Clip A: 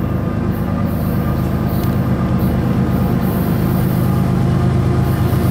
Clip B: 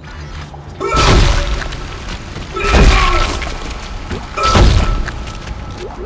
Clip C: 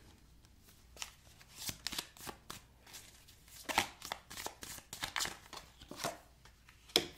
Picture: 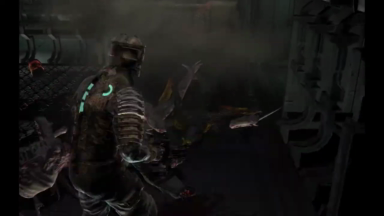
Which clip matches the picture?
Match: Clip B